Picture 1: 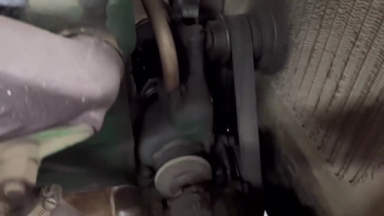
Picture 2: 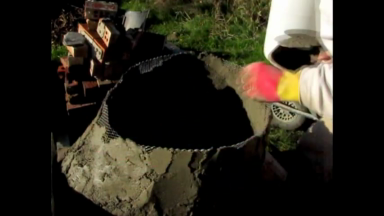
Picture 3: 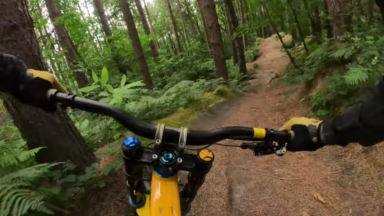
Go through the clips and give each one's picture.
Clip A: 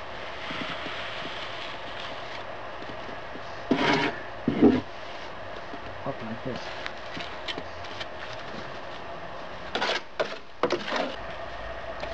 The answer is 2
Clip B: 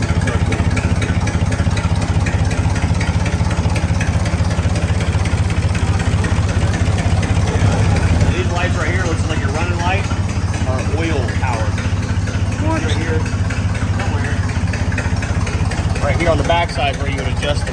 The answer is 1